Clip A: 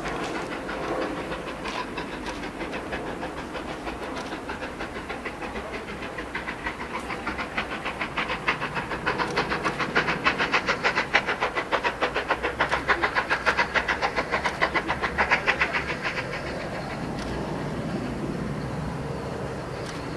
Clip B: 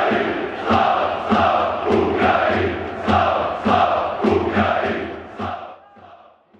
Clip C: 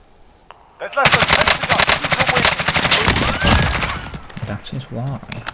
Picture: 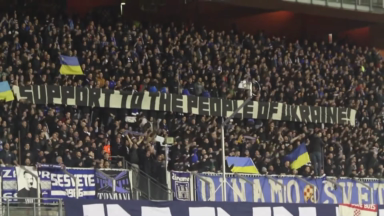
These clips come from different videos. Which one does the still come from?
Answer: B